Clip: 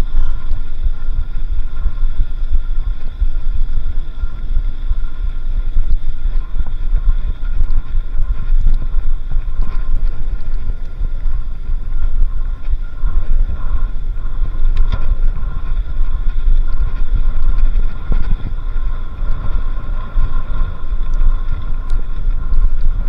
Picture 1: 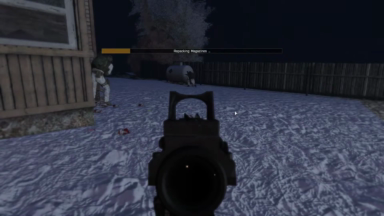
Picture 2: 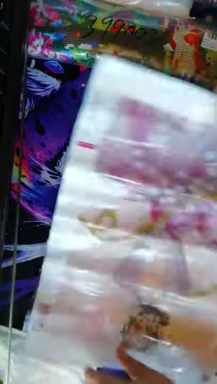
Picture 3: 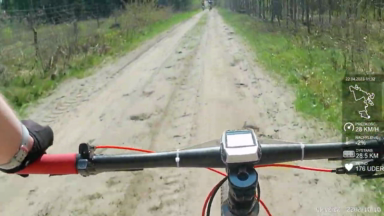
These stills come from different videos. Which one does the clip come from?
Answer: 3